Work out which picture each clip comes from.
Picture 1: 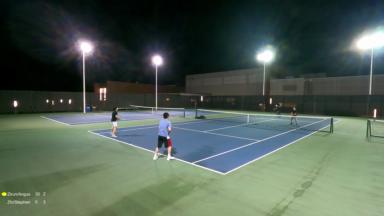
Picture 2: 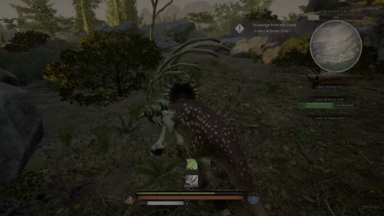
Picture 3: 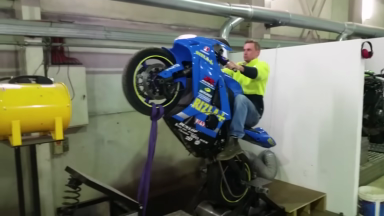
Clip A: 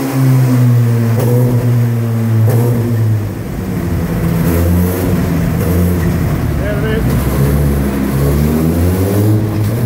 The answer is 3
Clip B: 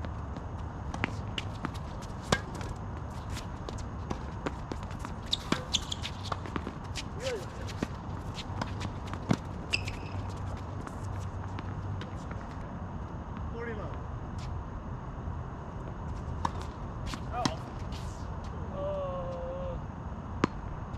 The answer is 1